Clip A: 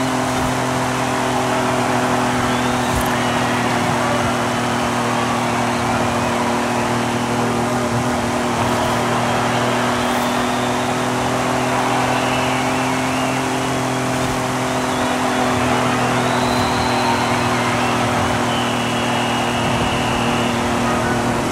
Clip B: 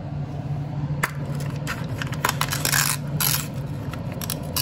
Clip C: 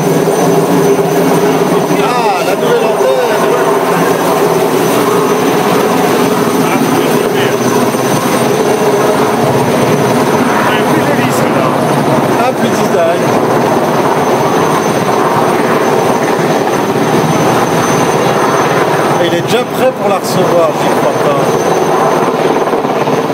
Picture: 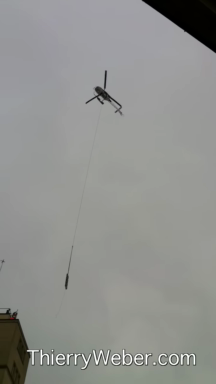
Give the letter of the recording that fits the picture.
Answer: C